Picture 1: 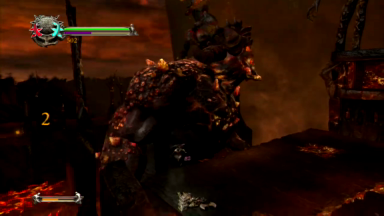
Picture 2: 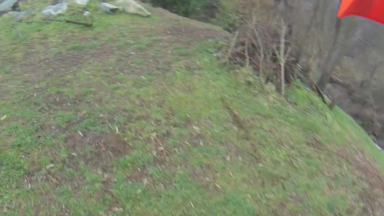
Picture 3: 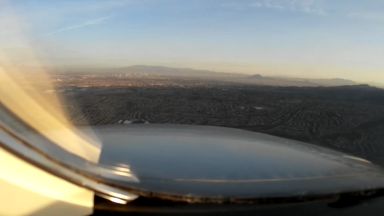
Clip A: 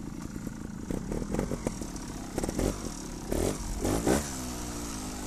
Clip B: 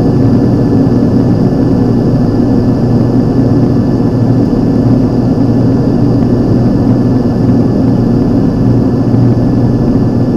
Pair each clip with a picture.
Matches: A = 2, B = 3